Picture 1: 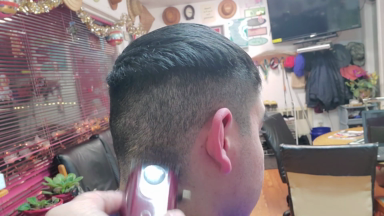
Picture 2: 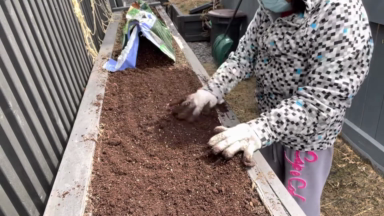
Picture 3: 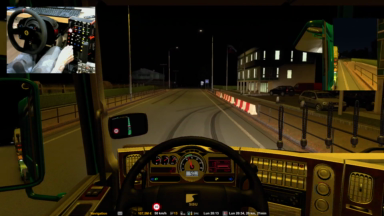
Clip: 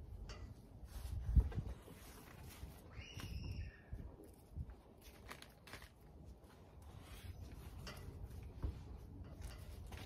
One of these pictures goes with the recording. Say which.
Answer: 2